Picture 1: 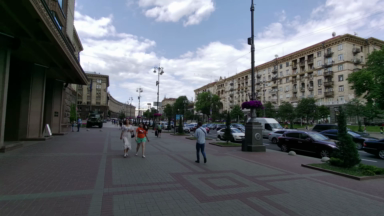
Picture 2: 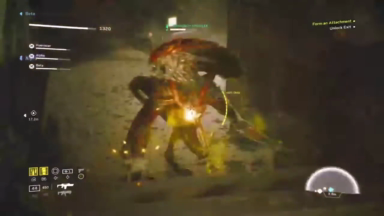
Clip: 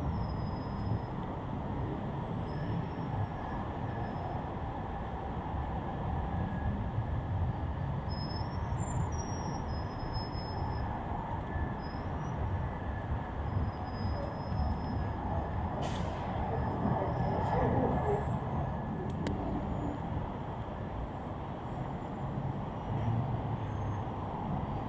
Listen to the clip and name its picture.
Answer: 1